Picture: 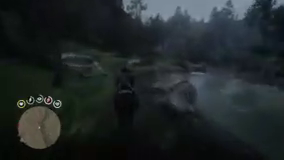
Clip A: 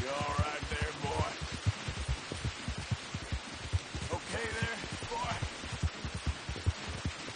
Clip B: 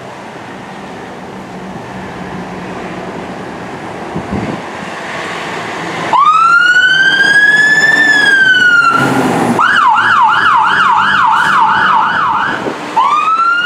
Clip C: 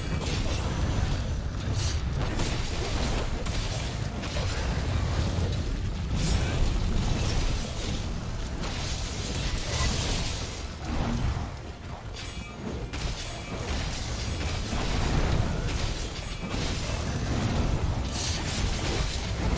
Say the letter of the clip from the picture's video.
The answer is A